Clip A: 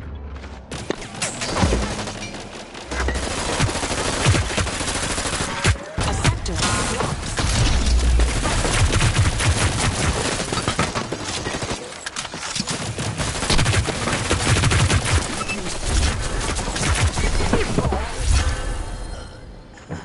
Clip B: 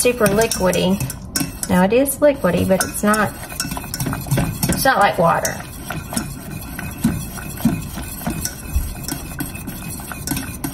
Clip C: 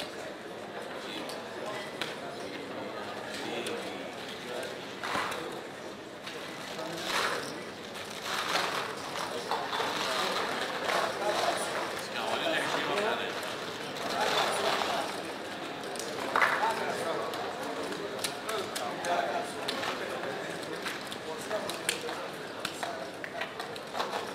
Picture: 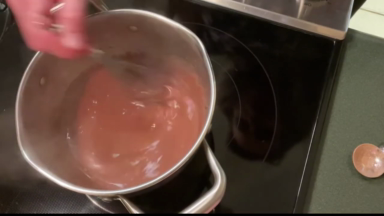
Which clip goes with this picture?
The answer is B